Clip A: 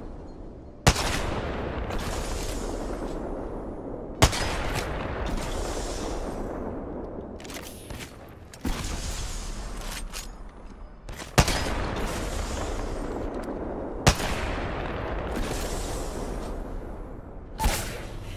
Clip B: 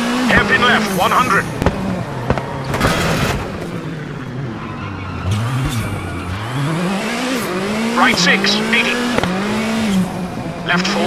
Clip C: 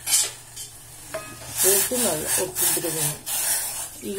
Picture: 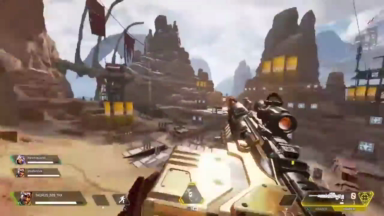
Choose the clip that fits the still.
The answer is A